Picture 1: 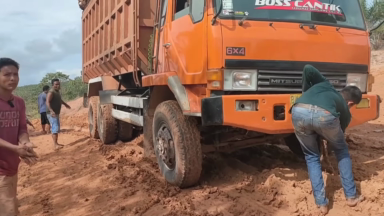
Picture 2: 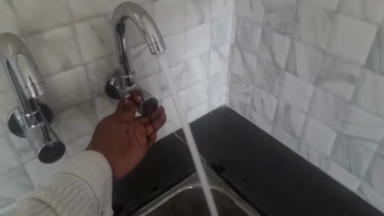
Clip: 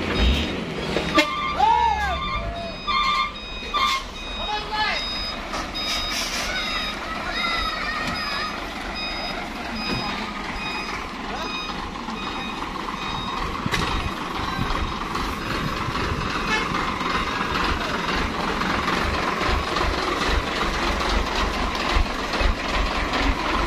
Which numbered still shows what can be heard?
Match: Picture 1